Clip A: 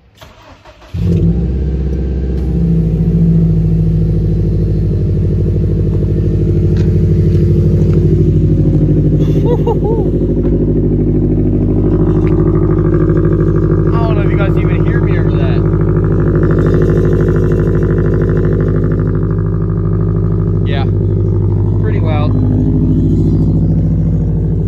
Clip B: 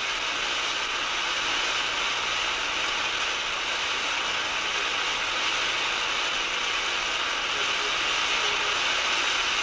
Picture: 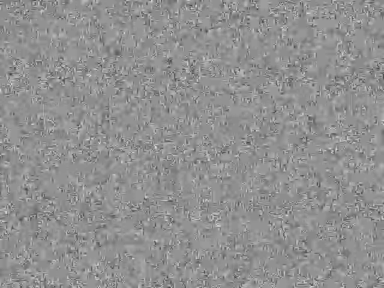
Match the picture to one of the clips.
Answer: B